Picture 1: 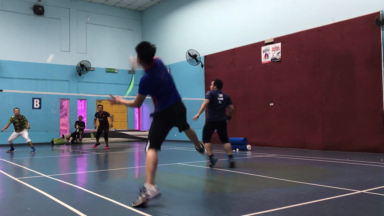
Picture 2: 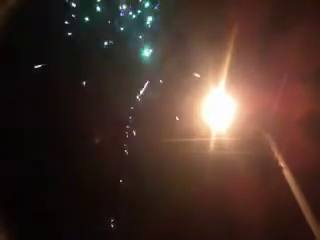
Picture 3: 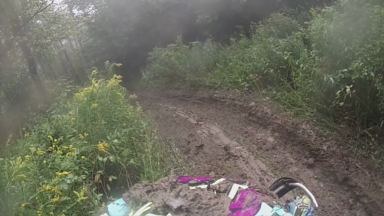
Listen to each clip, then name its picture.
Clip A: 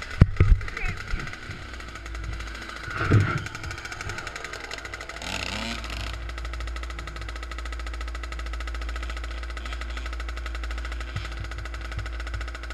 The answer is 3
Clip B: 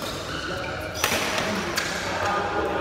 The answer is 1